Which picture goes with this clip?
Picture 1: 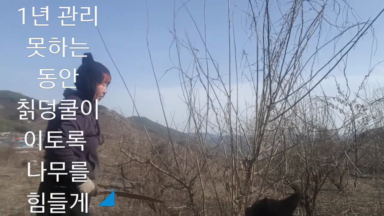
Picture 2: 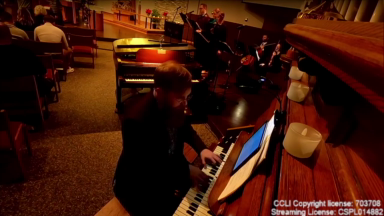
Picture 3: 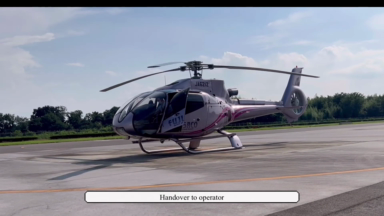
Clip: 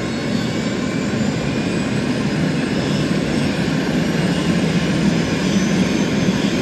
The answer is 3